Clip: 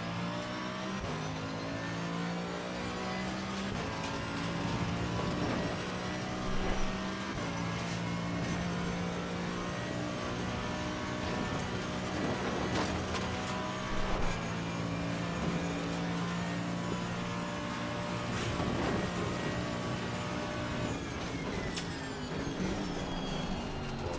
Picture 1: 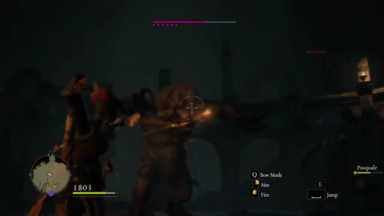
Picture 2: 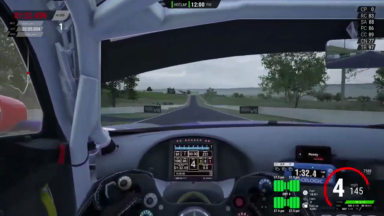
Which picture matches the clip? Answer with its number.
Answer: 2